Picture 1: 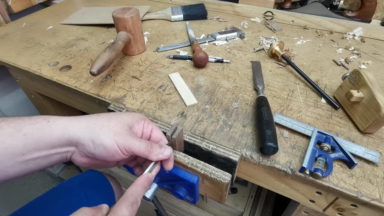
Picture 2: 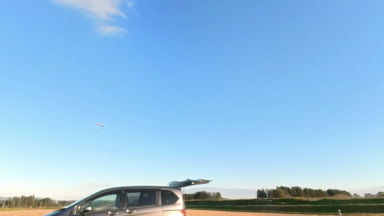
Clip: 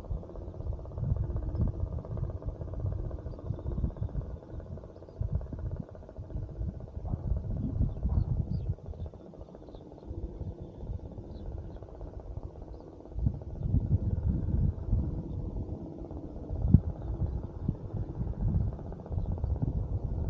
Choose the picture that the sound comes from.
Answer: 2